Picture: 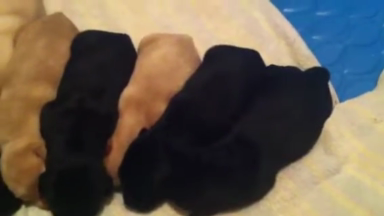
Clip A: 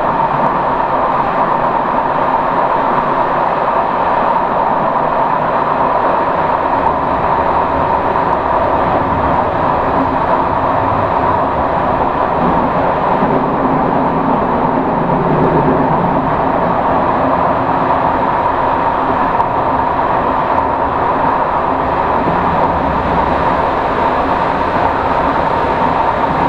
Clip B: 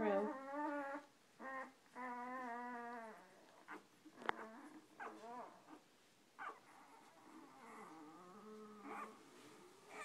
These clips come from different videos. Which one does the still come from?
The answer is B